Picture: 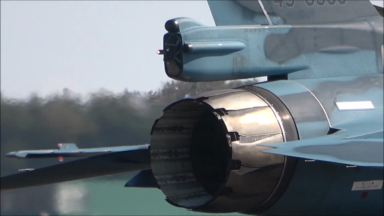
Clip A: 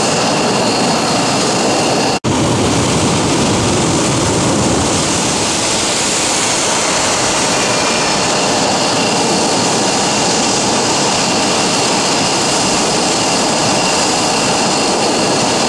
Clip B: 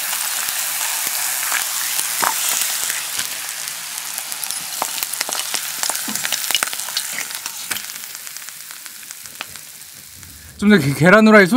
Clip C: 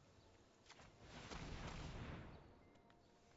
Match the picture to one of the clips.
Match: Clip A